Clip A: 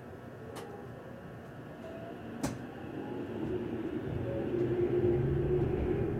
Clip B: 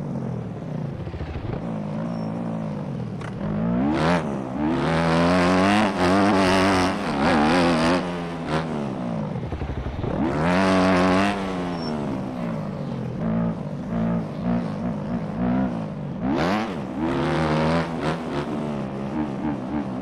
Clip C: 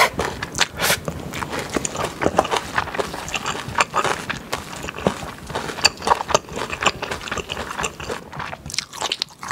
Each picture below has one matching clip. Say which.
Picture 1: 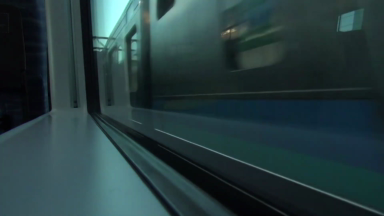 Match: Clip A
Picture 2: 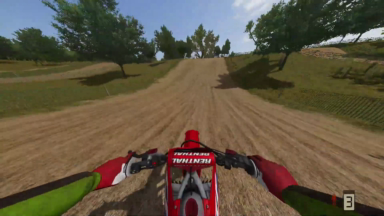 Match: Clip B